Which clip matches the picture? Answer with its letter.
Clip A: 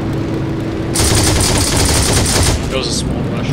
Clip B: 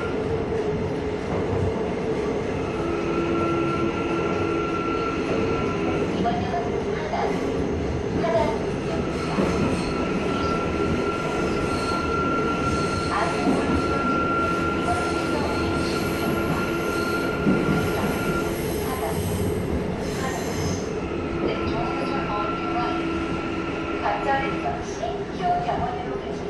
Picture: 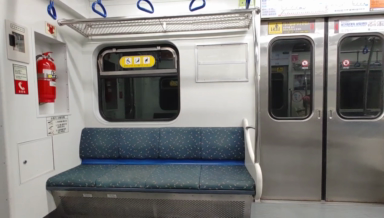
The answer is B